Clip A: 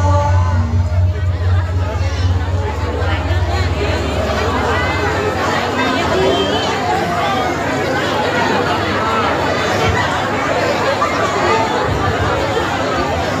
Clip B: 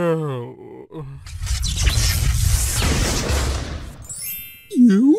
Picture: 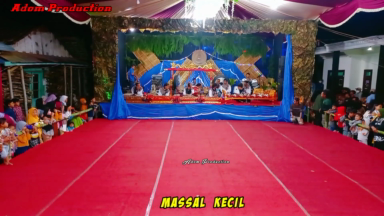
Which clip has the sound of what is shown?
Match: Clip A